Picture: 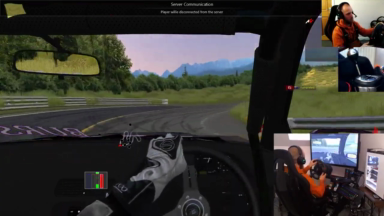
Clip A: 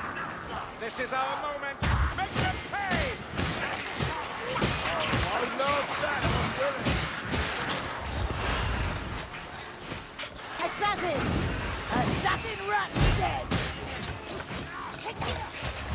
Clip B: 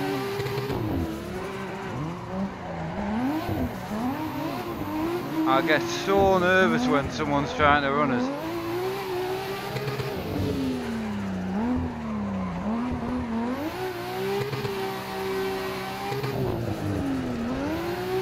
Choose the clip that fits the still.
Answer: B